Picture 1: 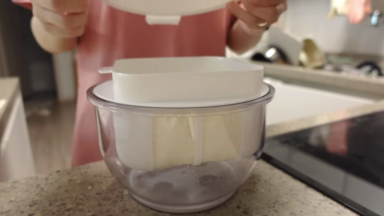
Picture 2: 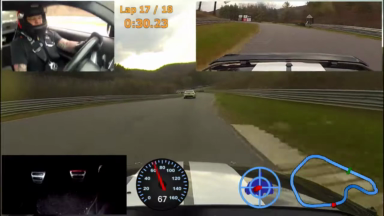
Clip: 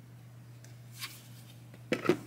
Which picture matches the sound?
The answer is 1